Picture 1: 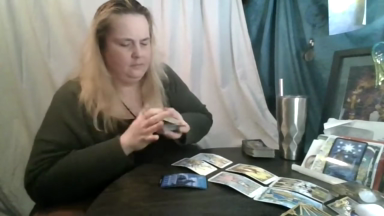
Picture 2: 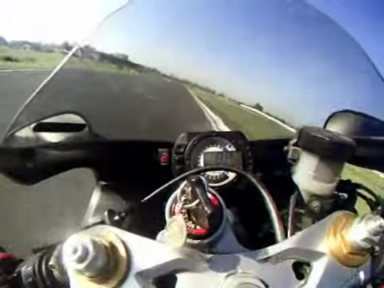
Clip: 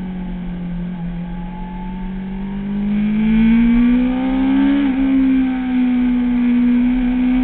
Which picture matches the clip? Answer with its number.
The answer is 2